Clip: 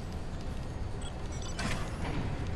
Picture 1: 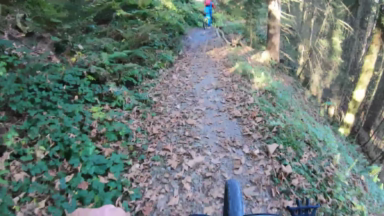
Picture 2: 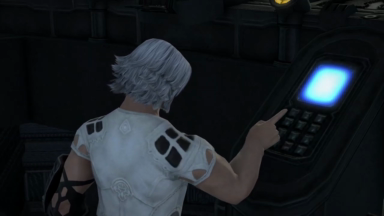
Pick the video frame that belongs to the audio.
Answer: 2